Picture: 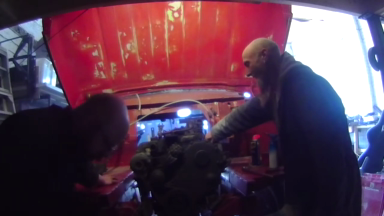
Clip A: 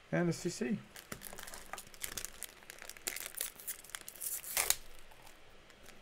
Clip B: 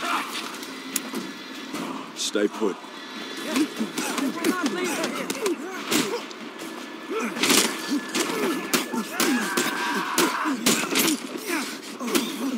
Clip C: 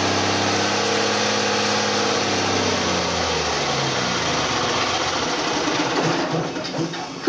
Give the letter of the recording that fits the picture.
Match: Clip C